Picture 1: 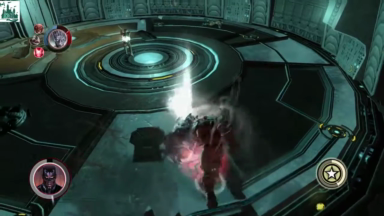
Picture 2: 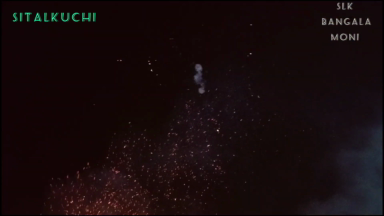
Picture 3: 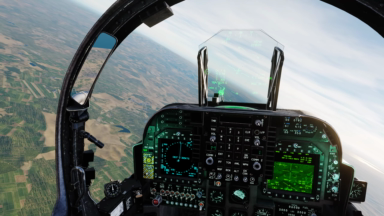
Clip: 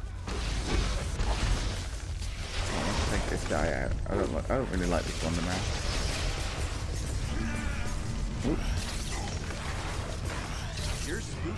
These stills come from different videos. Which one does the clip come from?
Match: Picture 1